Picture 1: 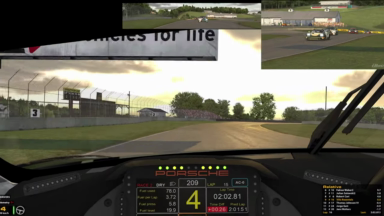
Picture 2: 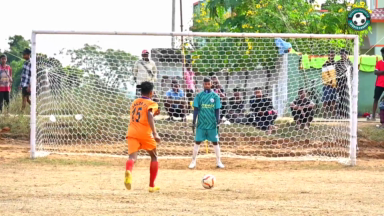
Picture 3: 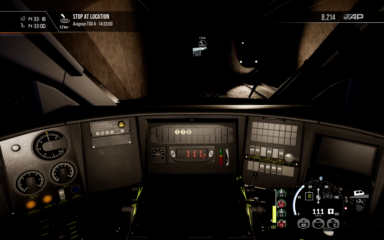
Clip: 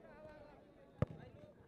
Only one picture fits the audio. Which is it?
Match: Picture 2